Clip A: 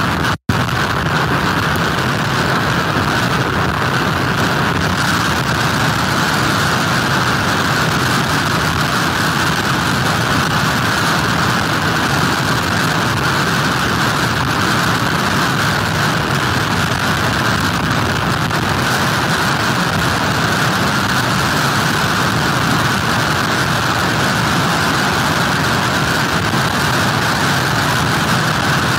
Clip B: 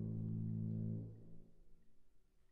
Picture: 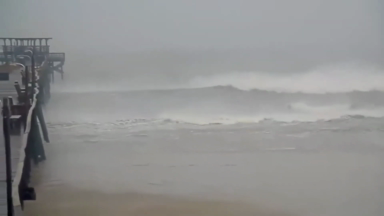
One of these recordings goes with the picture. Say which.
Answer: A